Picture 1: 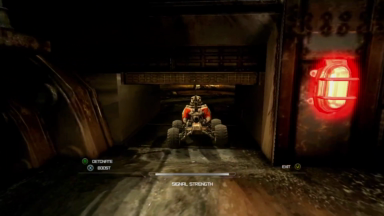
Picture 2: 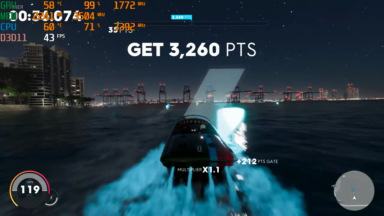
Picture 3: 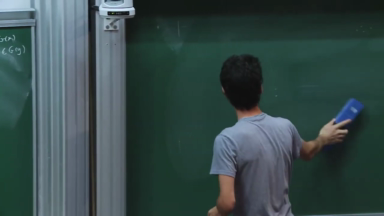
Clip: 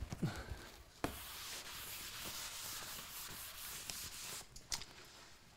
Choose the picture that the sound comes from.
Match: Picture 3